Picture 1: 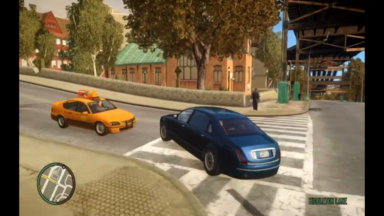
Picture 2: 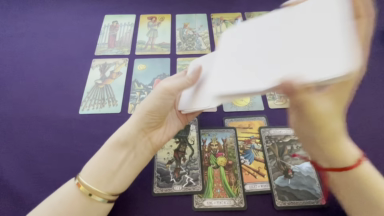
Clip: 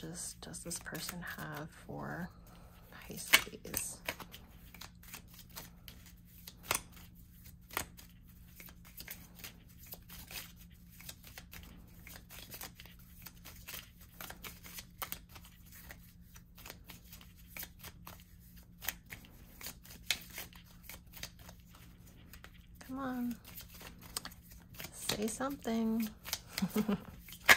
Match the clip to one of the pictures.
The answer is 2